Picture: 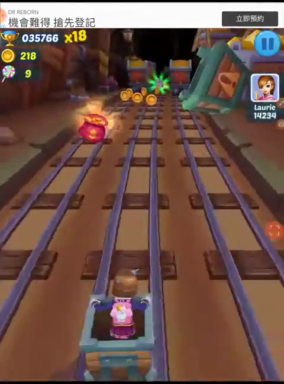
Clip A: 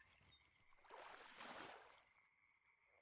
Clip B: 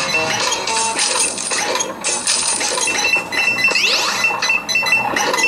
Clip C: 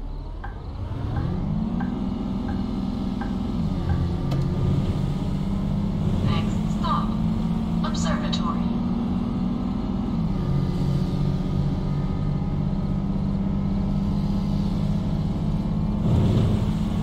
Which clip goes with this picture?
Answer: B